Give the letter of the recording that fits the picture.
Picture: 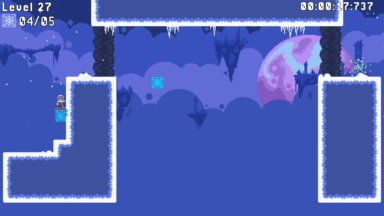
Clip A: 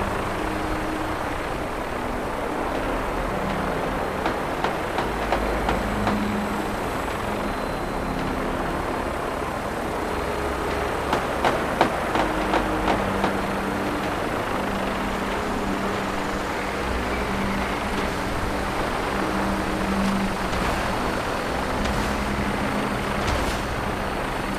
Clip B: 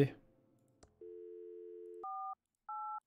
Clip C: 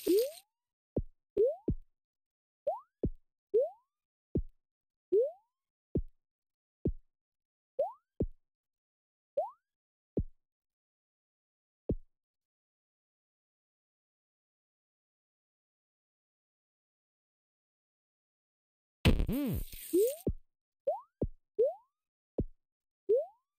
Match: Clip C